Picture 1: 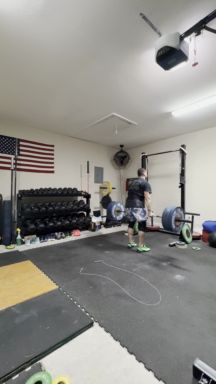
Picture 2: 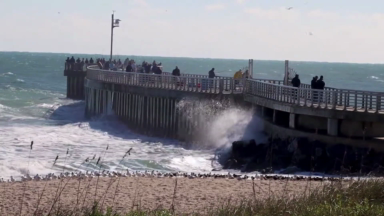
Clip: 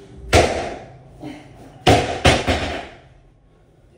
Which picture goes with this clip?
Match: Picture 1